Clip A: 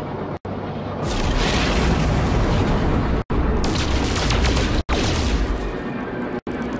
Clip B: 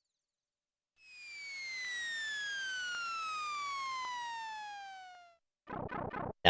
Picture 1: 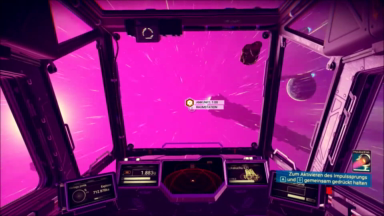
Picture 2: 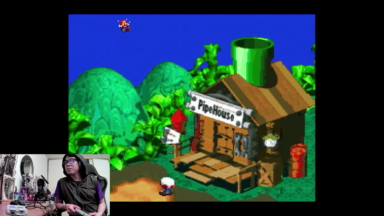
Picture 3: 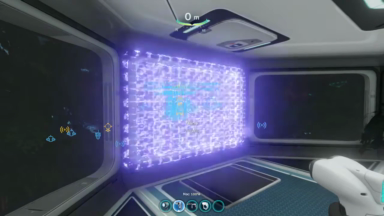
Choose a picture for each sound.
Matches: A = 1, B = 2